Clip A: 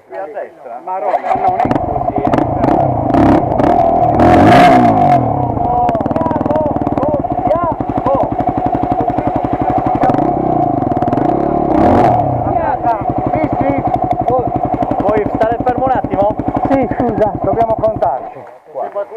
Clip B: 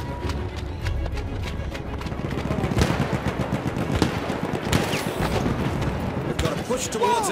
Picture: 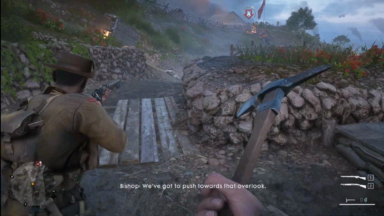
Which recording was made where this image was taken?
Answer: B